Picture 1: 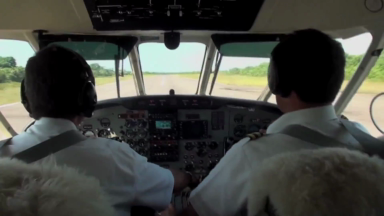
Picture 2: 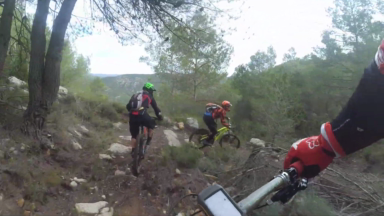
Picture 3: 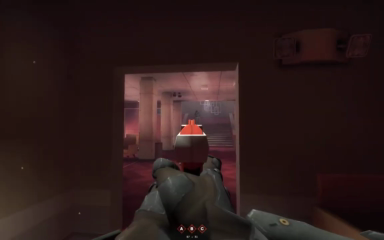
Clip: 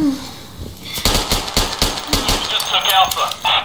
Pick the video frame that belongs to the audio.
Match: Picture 3